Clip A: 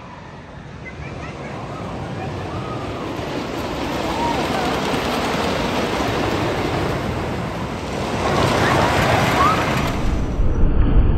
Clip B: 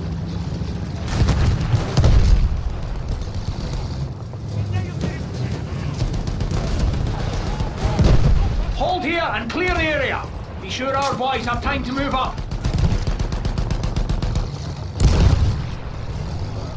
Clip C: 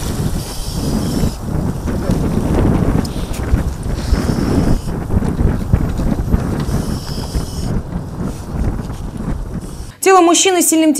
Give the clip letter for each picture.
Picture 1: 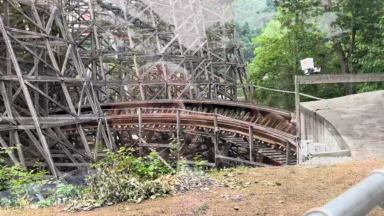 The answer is A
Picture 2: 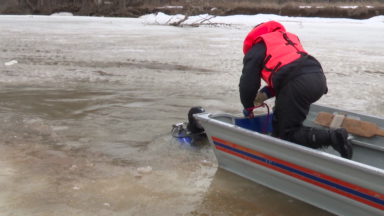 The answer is C